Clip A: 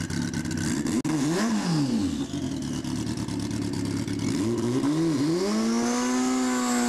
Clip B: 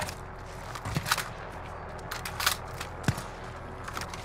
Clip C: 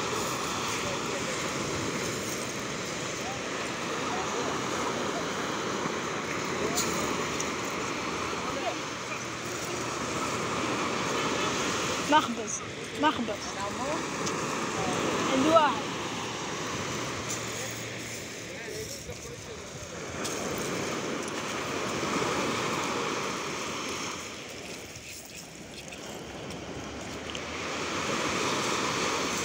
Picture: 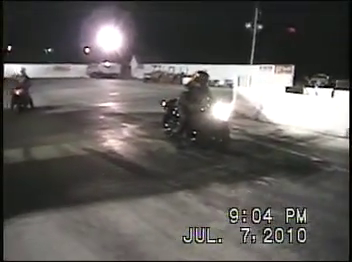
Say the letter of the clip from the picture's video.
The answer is A